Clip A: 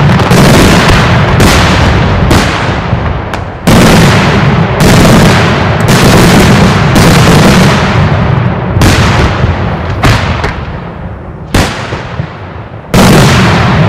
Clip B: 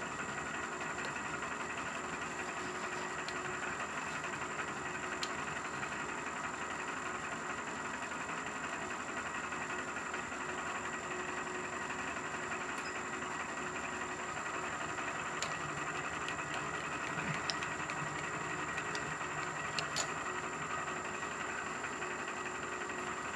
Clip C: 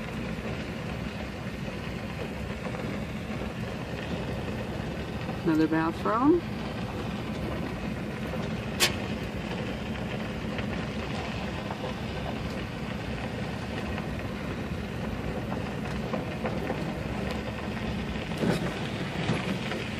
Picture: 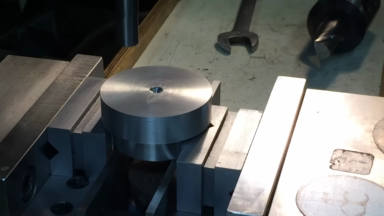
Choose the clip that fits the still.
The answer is B